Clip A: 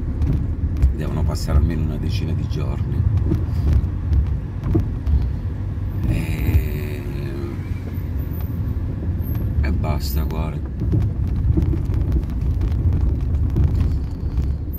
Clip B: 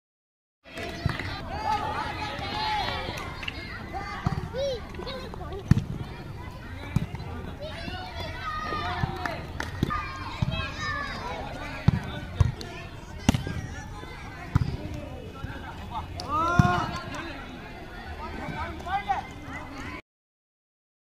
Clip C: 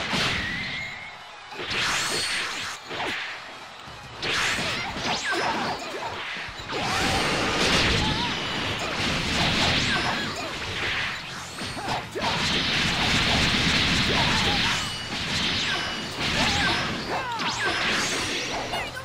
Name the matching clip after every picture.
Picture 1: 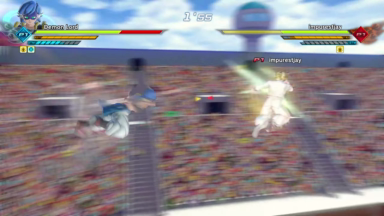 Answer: C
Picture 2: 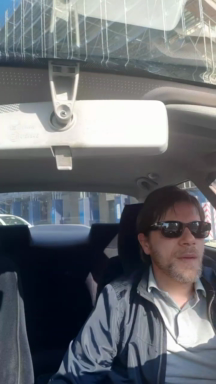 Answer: A